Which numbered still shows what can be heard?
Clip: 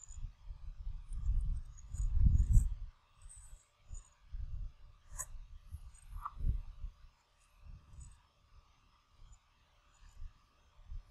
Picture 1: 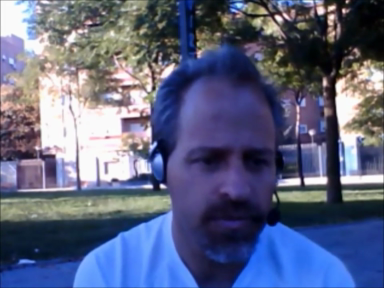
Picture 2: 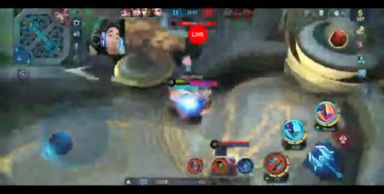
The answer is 1